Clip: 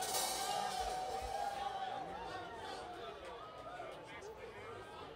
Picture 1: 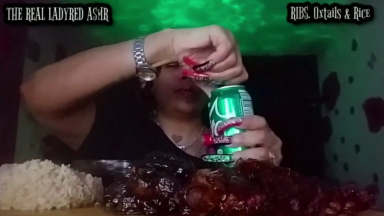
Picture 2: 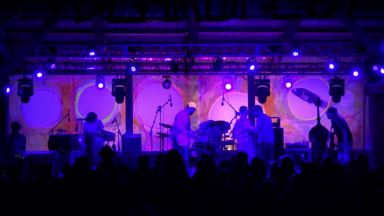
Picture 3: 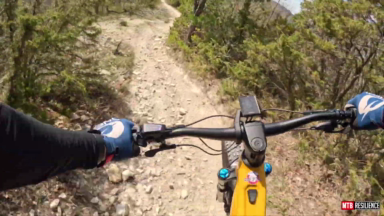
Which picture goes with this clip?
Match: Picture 2